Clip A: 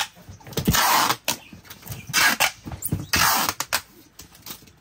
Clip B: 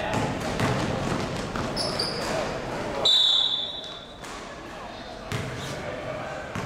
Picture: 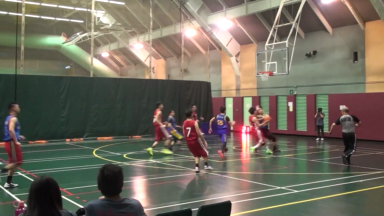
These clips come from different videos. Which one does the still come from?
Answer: B